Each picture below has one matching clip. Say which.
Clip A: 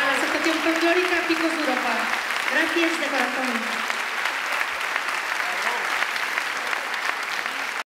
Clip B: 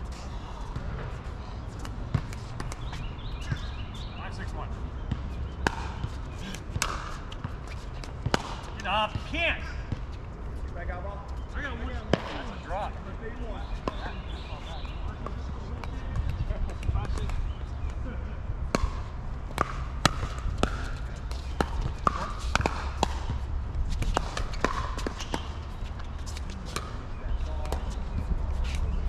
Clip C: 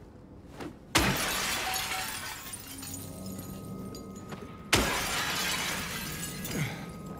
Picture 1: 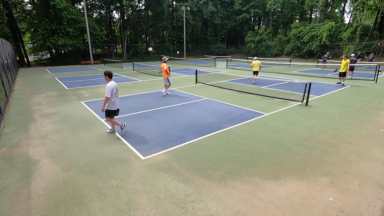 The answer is B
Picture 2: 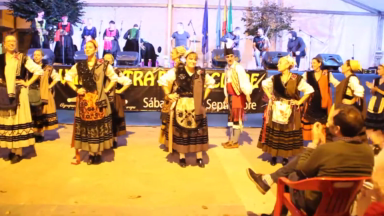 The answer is A